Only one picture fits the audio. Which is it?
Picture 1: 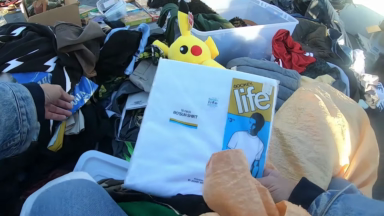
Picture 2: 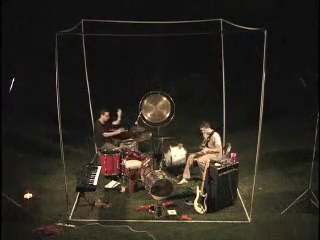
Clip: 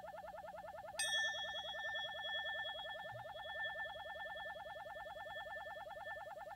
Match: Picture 2